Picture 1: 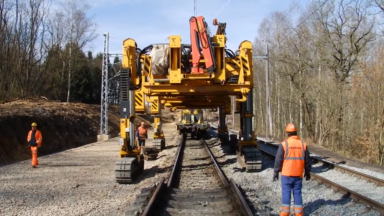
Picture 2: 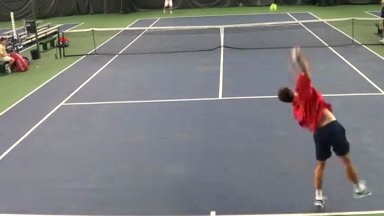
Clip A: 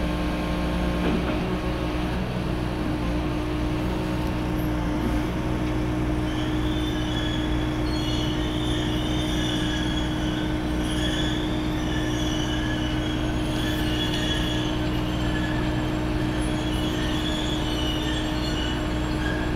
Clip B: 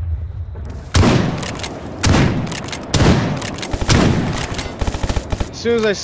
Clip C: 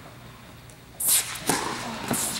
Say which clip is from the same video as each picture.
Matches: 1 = A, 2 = C